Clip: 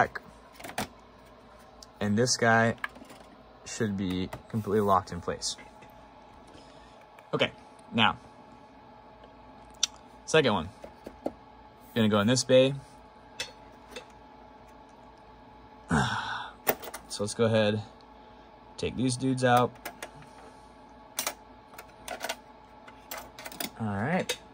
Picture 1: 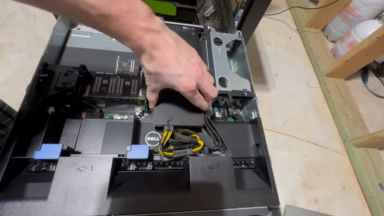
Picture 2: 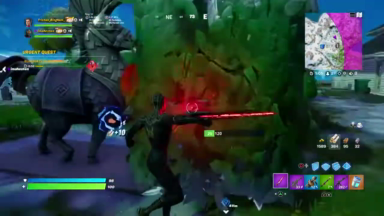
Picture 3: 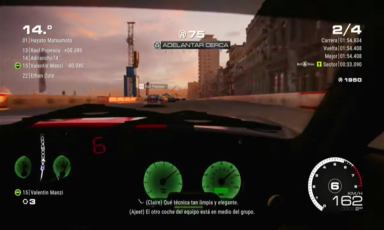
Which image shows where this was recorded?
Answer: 1